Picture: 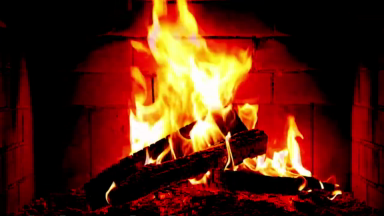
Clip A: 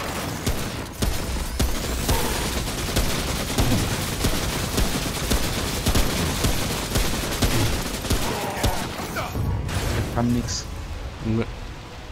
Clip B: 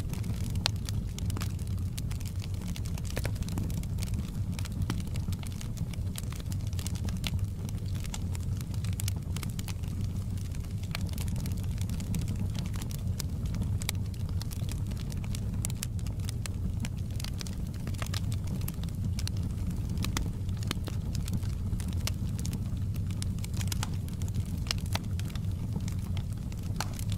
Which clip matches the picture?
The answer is B